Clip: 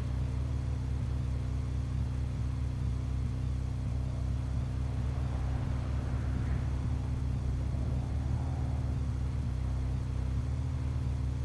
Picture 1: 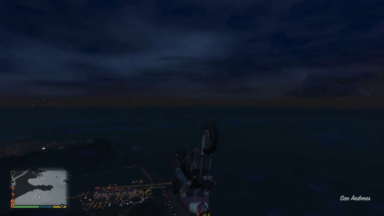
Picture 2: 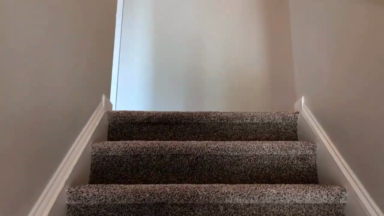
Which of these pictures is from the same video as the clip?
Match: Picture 1